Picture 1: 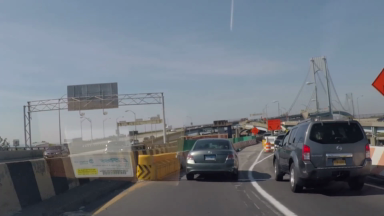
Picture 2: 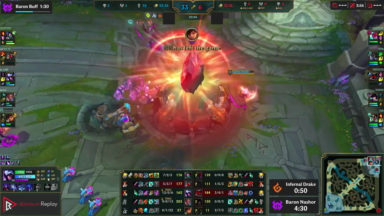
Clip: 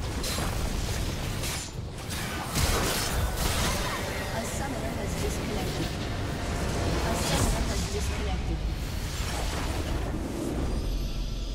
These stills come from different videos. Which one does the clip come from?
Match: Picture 2